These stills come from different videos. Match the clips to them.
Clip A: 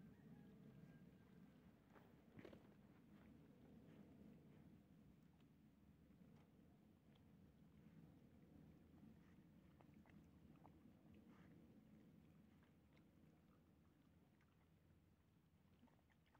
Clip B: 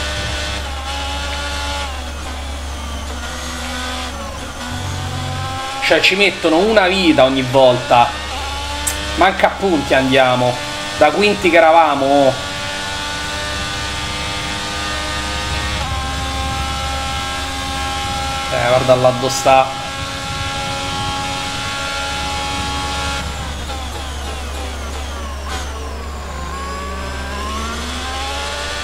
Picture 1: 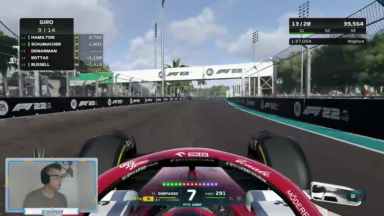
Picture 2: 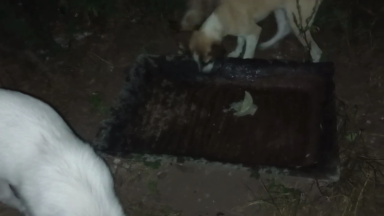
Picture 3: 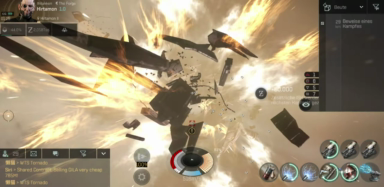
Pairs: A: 2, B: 1